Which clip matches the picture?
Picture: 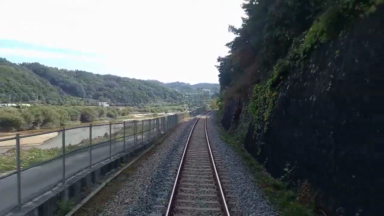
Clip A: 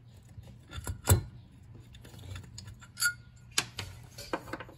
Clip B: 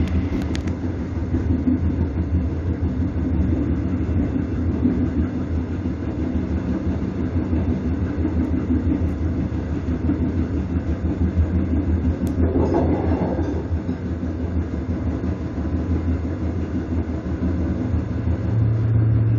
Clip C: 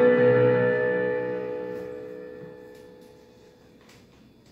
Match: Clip B